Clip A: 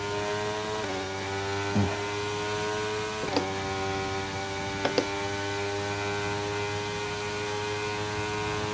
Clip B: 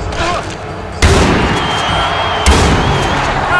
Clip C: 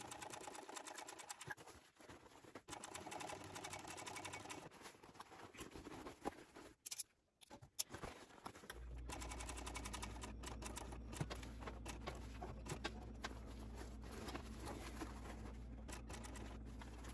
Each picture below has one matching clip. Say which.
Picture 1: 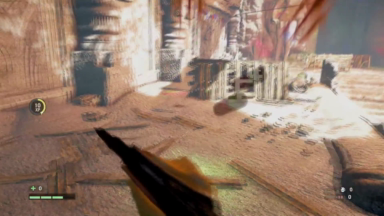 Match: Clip B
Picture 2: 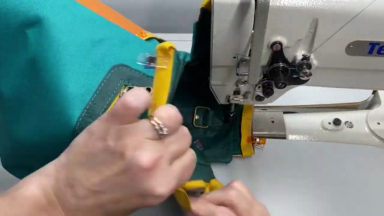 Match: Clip C